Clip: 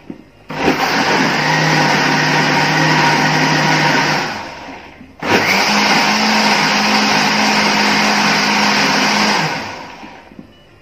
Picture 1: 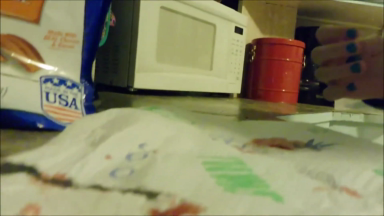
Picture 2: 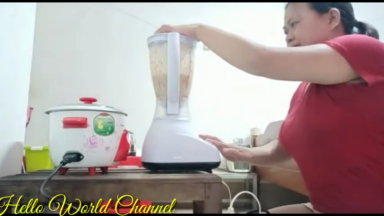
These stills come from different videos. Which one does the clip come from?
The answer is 2